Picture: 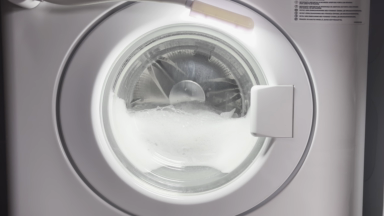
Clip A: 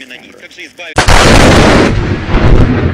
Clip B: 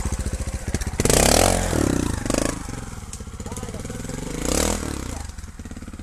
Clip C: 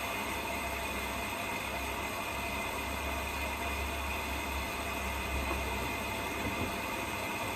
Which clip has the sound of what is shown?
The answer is C